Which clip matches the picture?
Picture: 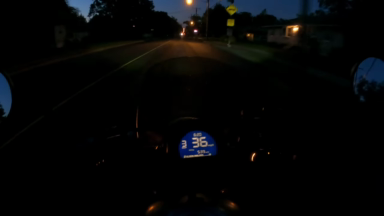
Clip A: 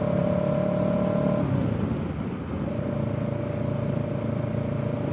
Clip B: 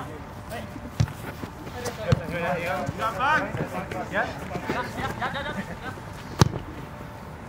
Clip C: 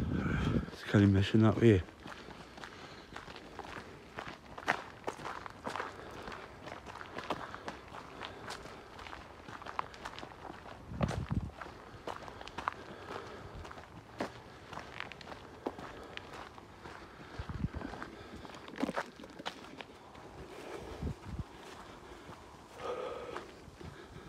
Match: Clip A